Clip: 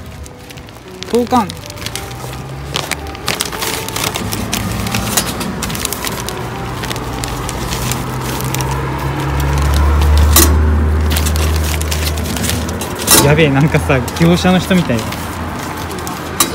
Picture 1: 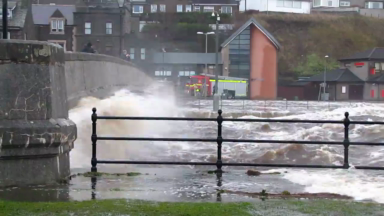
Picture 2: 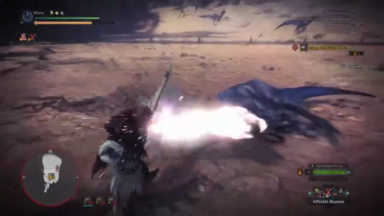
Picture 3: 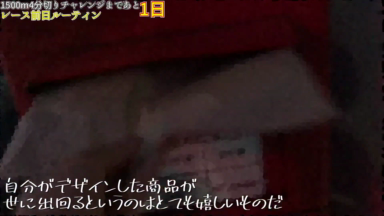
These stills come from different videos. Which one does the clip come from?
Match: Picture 3